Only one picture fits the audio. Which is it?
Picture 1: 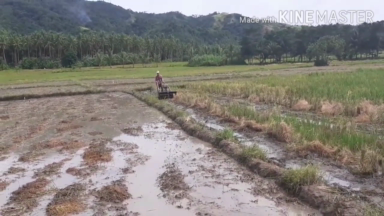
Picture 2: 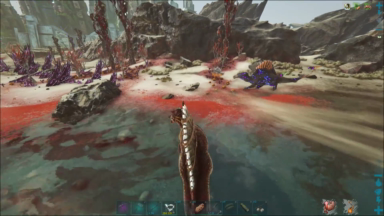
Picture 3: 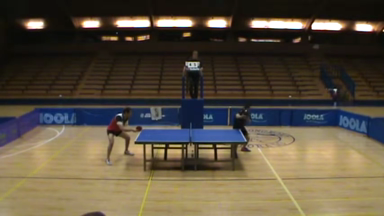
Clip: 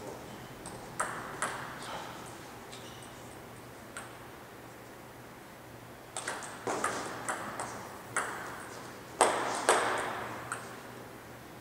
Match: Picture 3